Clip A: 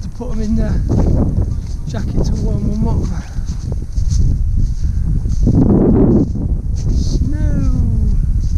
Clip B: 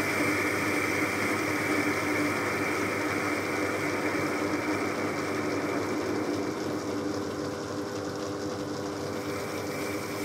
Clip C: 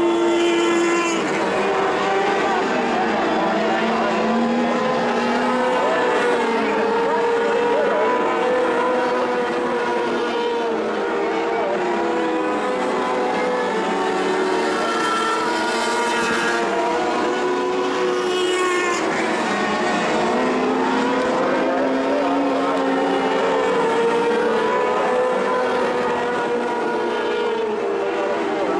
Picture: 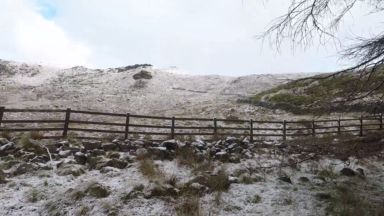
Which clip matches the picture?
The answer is A